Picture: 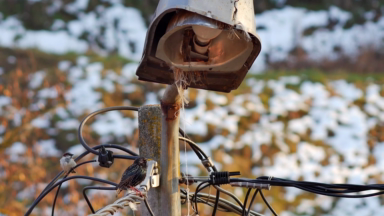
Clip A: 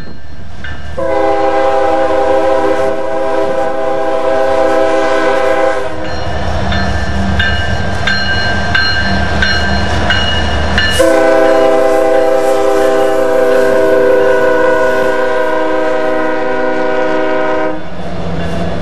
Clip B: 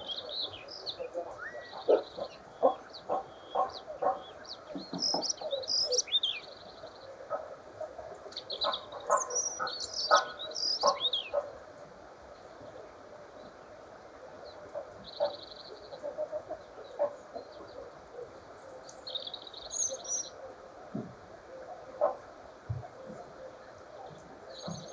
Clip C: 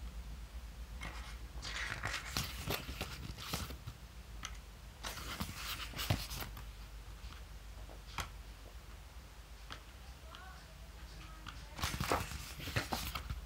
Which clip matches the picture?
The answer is B